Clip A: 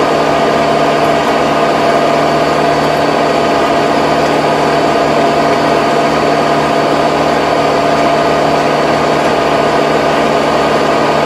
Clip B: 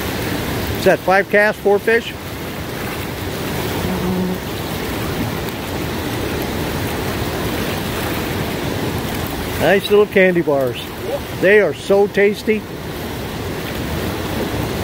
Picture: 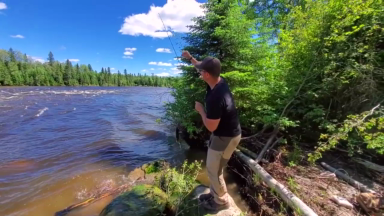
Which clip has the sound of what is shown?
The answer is B